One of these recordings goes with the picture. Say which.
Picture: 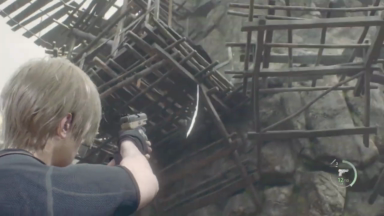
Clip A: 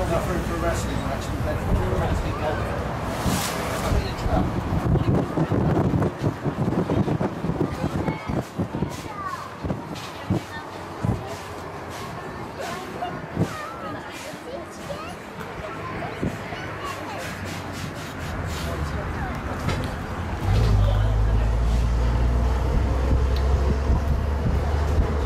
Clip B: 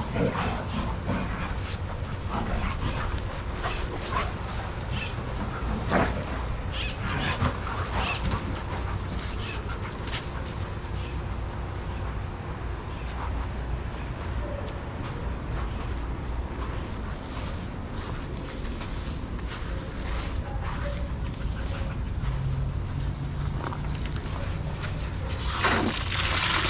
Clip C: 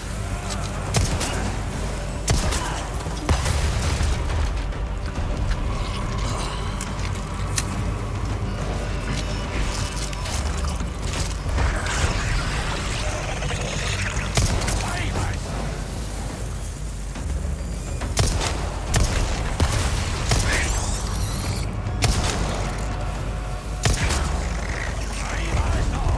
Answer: C